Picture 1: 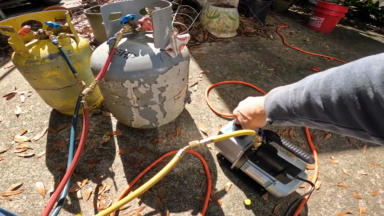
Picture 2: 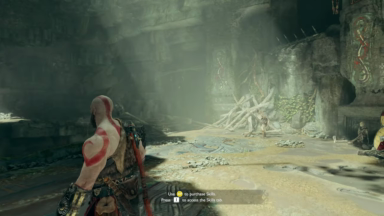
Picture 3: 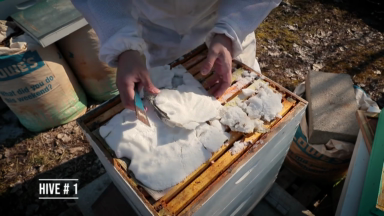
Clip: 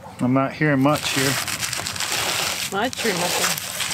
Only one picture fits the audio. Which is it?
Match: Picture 3